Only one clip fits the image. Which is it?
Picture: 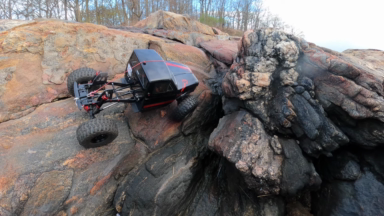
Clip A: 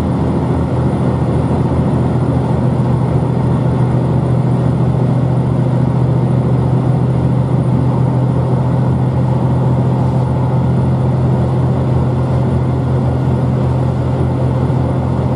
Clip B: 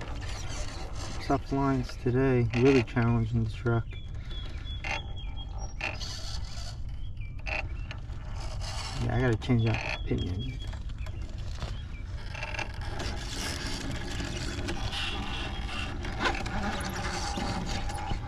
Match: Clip B